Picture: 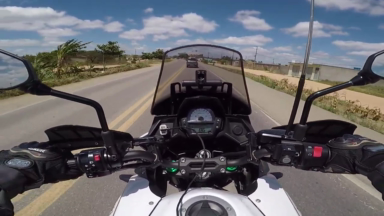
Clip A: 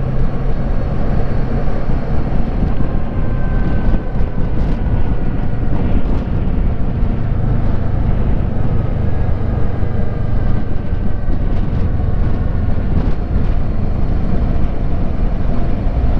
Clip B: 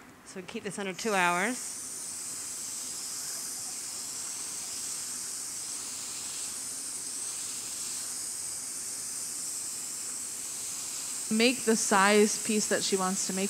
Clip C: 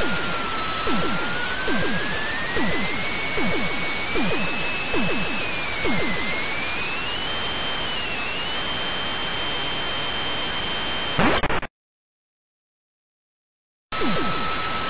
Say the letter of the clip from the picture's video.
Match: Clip A